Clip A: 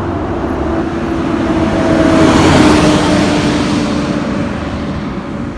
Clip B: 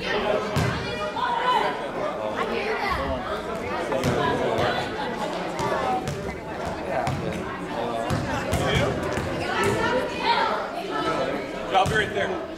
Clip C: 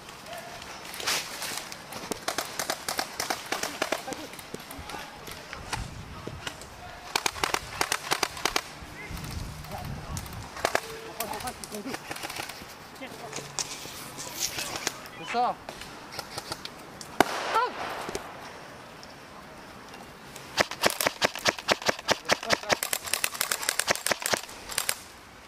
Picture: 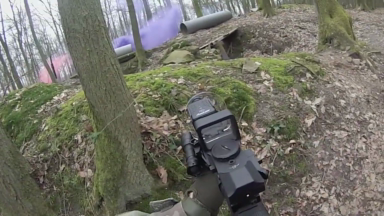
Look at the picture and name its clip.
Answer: C